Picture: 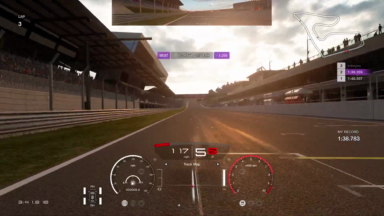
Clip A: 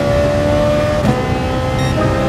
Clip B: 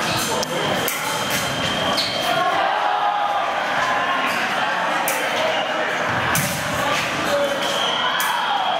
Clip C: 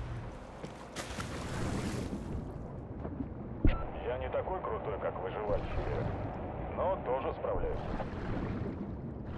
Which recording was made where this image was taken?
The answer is A